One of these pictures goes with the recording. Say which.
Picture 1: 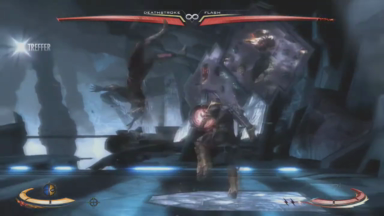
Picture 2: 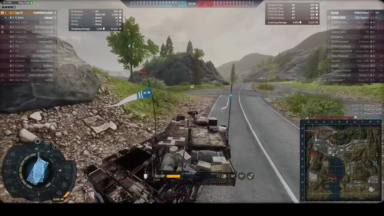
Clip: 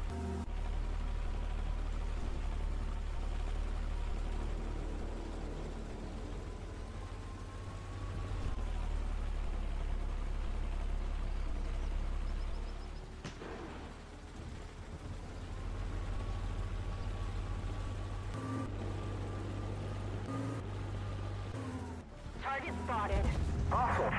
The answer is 2